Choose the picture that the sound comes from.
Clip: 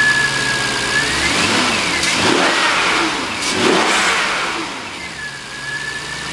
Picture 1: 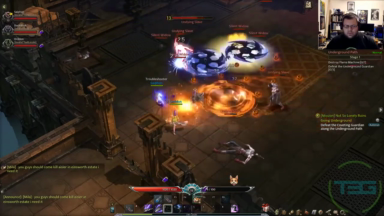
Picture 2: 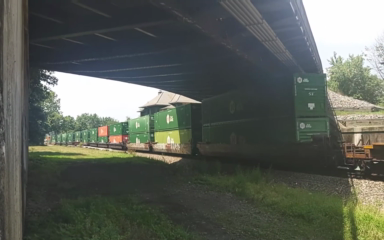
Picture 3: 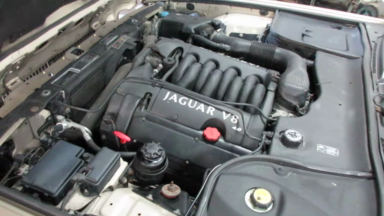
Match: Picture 3